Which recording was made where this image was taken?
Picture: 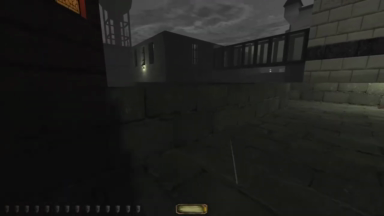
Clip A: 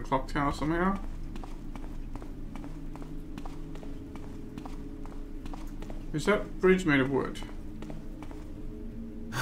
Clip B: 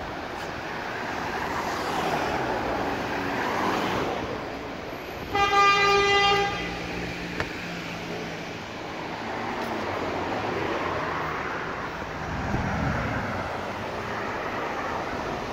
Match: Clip A